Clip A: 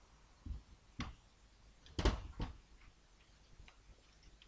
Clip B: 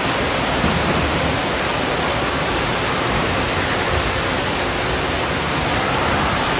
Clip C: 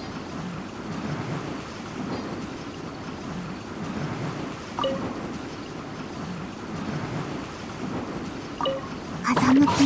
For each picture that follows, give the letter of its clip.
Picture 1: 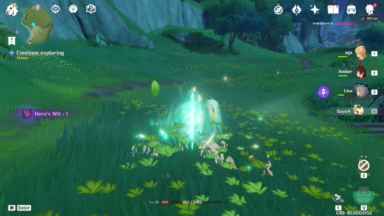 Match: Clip C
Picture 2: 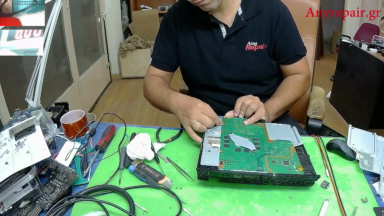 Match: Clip A